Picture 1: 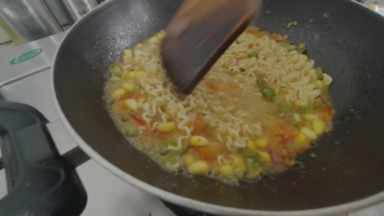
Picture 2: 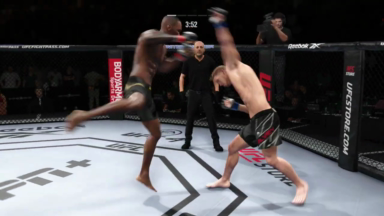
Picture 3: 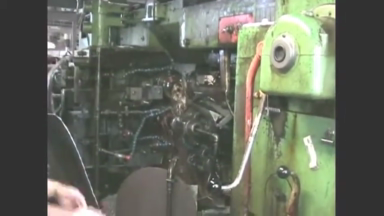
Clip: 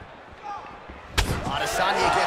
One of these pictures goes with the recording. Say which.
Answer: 2